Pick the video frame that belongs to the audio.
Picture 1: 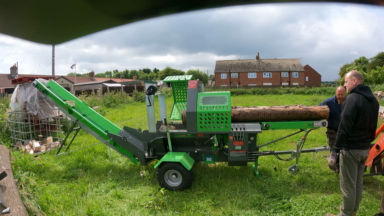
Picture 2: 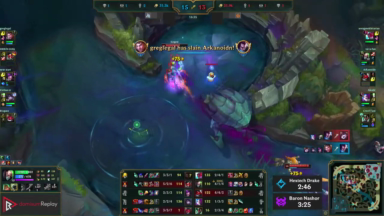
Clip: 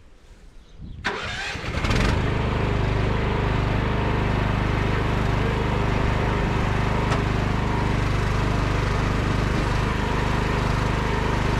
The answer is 1